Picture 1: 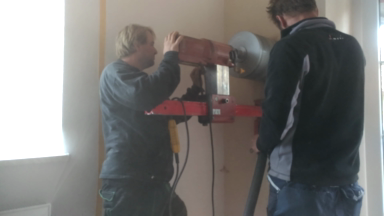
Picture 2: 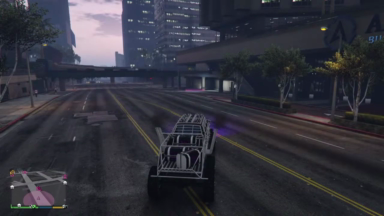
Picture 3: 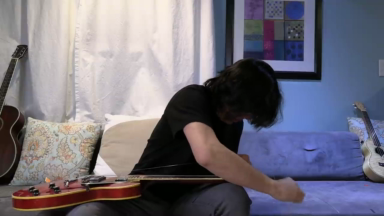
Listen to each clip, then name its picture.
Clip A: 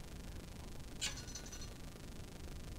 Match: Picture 3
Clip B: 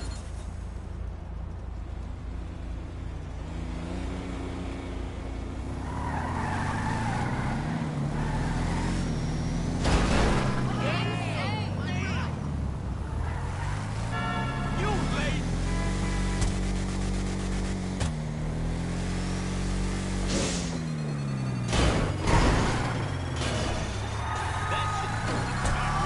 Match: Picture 2